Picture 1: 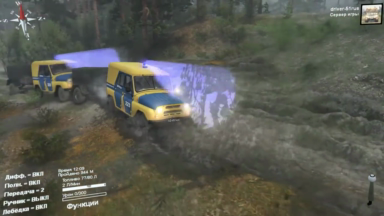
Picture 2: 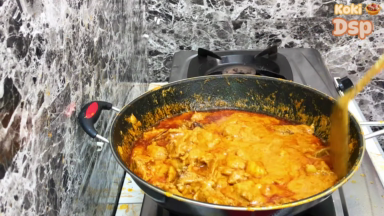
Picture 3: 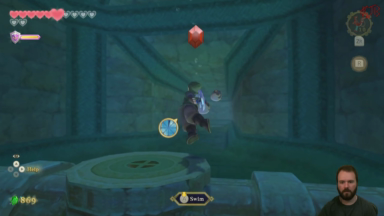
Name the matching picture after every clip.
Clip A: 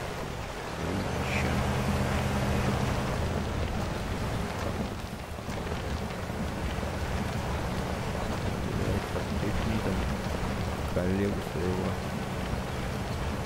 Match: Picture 1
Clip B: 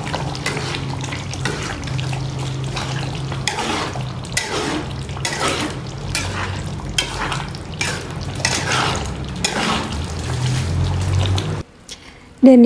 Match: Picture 2